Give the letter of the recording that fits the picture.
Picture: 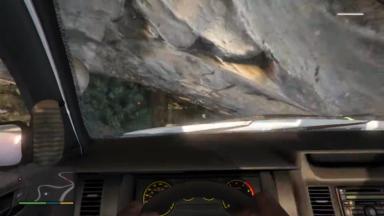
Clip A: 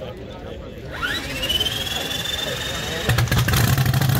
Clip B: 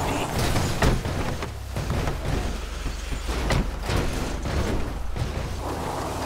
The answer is B